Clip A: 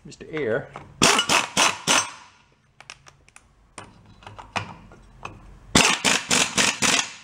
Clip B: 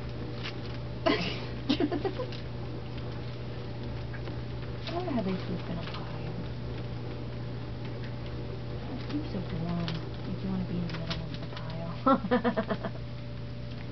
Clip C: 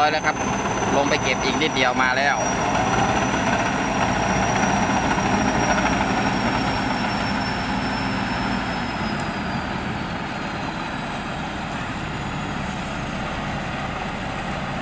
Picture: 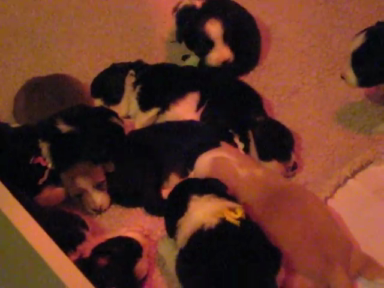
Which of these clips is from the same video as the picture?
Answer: B